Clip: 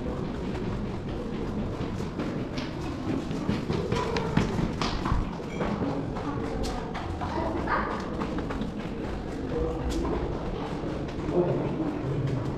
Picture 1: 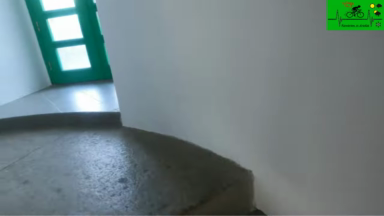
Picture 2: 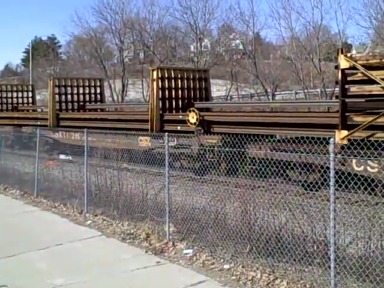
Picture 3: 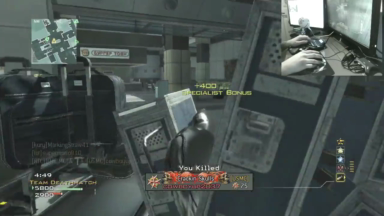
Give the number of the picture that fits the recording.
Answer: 1